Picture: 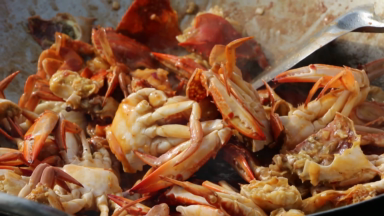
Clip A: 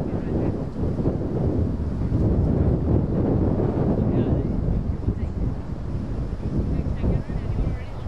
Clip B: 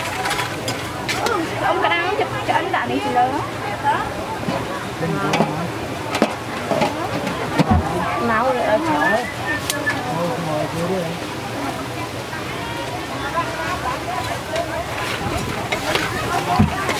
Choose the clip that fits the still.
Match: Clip B